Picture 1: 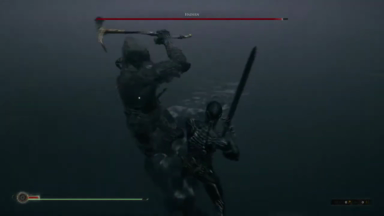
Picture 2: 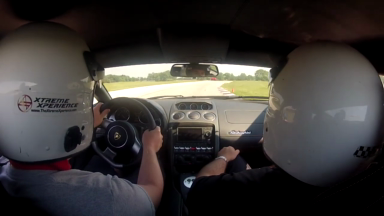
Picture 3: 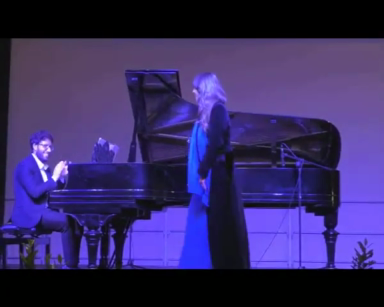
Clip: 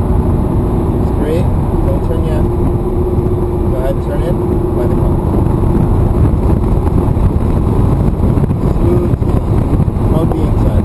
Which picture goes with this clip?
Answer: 2